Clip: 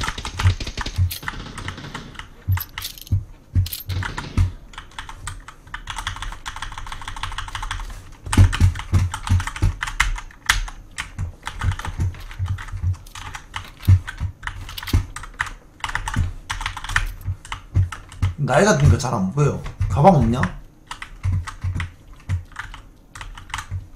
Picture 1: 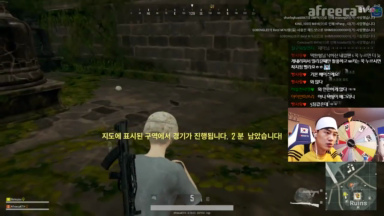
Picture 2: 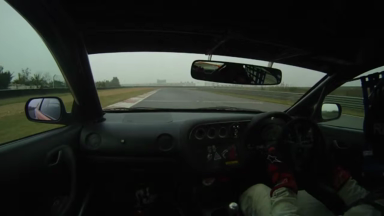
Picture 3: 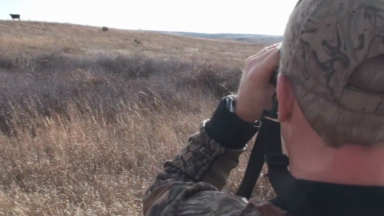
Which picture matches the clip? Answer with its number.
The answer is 1